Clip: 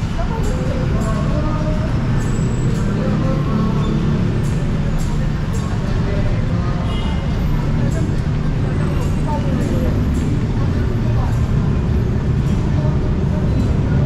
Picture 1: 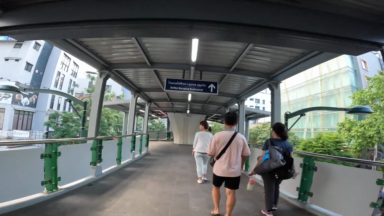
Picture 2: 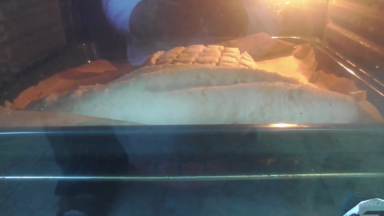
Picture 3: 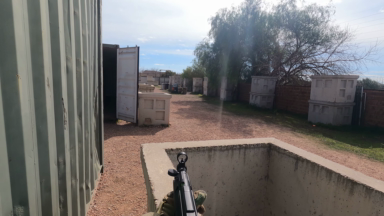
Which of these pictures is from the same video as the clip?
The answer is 1